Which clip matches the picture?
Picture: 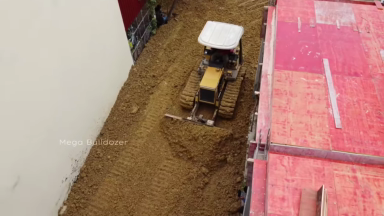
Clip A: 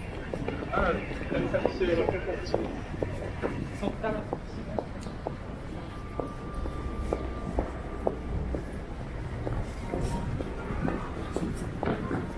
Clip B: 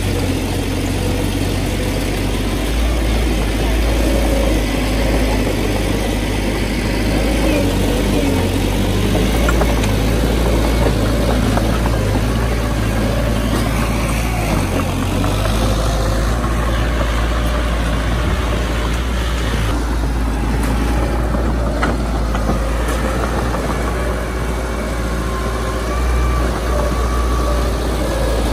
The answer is B